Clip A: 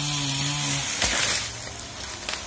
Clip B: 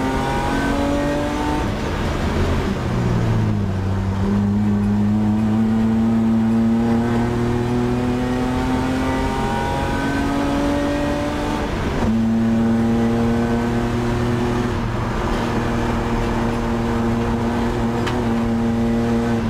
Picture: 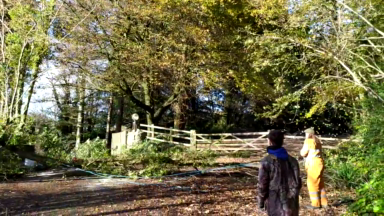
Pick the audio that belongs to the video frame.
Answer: A